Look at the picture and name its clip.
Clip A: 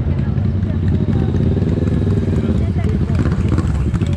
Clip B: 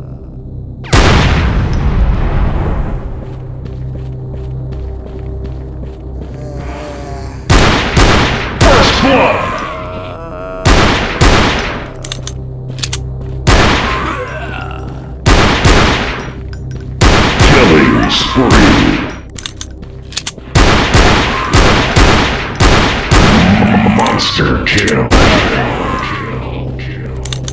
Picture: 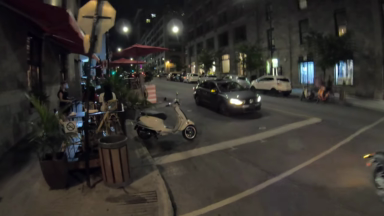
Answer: A